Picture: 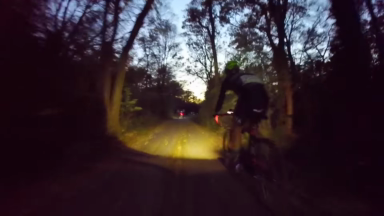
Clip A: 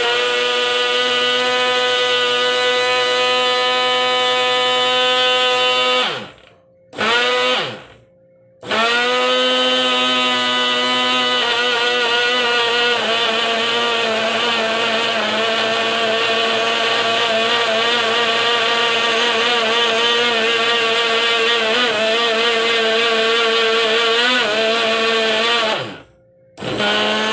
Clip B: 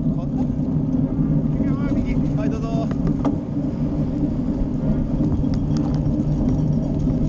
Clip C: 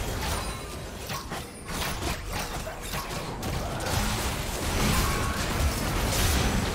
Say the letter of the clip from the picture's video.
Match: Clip B